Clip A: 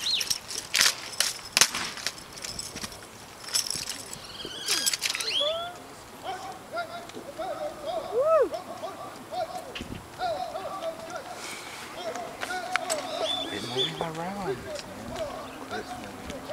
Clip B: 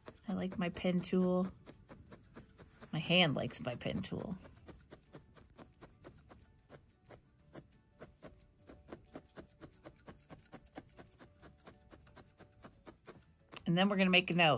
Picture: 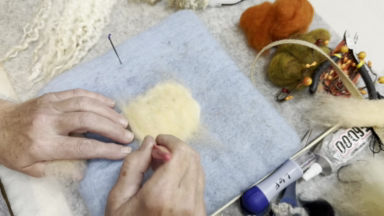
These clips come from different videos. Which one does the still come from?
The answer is B